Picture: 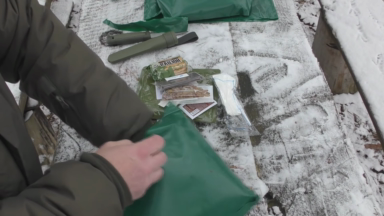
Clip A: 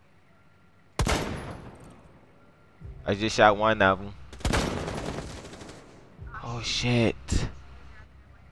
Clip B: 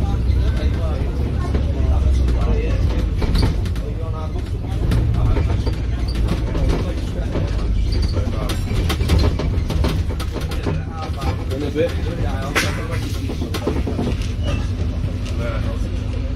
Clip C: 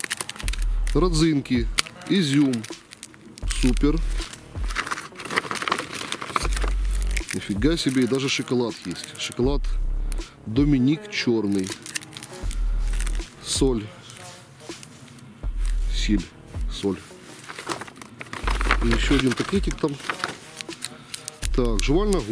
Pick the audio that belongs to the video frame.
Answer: C